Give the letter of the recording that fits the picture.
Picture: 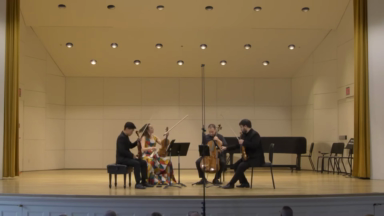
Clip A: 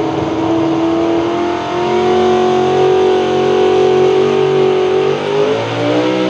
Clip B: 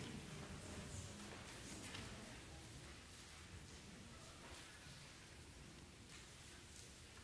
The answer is B